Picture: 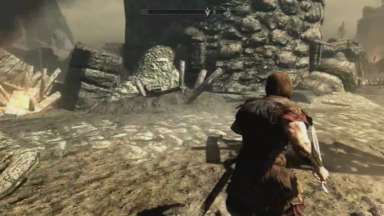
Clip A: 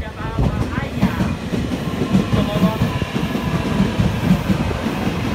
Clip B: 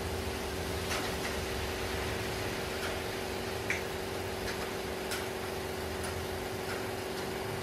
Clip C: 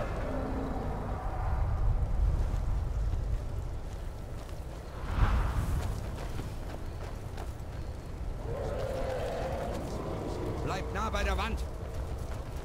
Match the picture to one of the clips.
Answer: C